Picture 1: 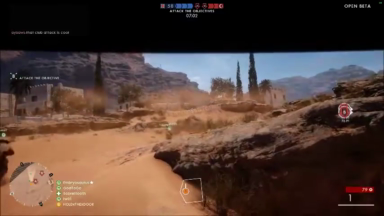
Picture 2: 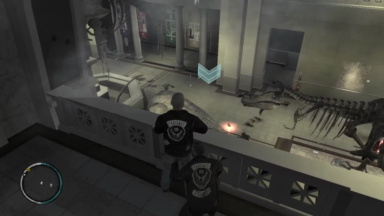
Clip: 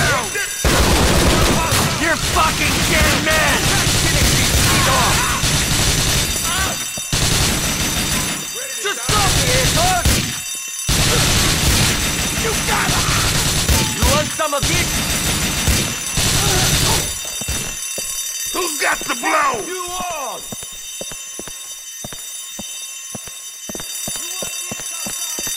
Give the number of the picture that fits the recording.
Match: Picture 2